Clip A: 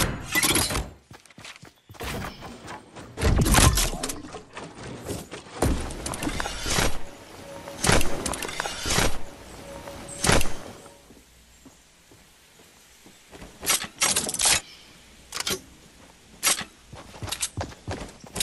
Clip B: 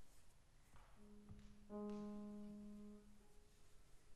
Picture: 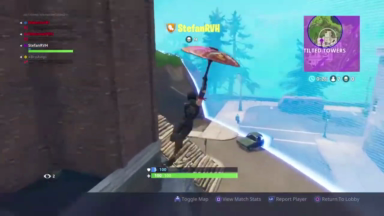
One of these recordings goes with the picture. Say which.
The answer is A